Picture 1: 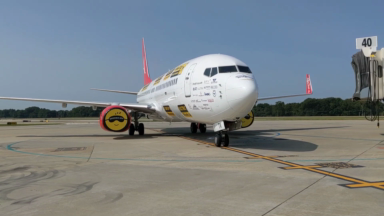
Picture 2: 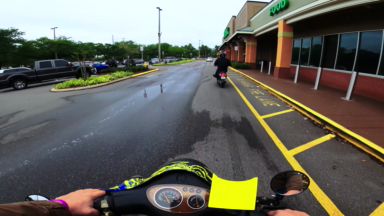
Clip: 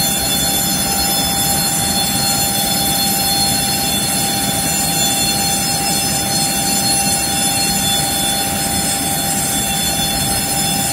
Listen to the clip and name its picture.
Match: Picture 1